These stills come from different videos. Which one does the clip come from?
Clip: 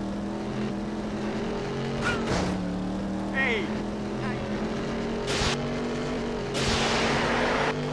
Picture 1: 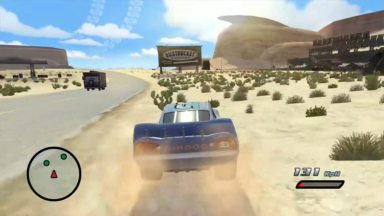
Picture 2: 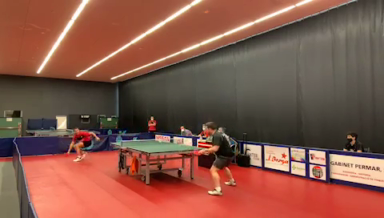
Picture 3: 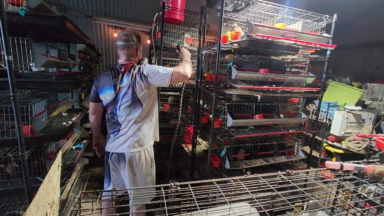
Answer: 1